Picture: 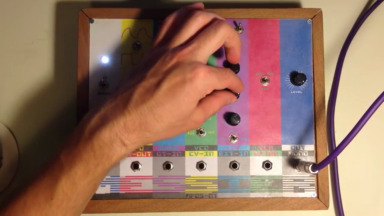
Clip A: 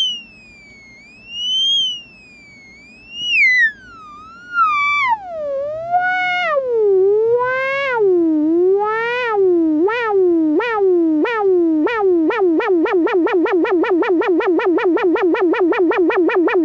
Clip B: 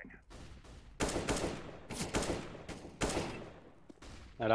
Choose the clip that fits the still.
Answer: A